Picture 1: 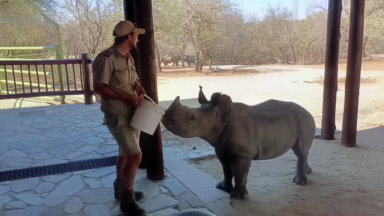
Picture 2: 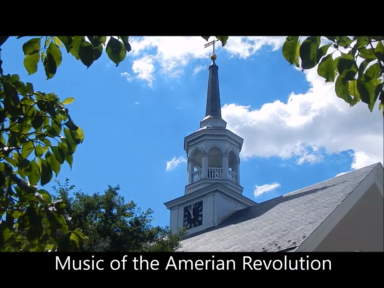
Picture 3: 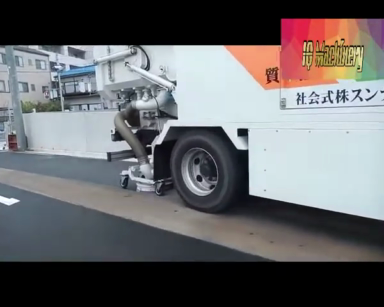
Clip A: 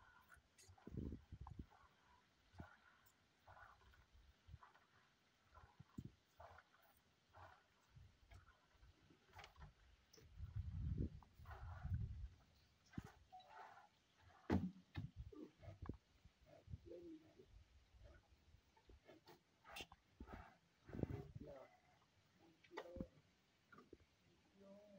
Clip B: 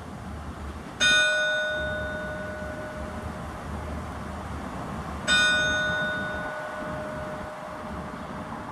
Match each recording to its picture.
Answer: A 1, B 2